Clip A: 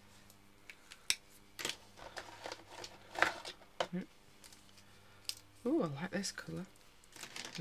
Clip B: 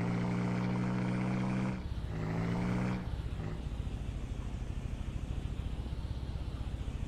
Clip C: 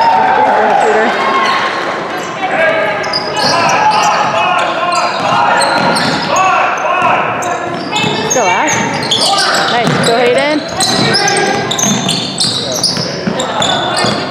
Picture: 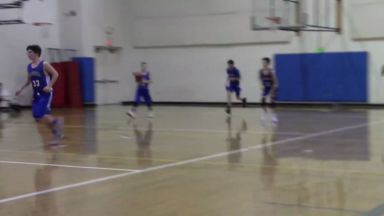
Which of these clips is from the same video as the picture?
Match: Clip C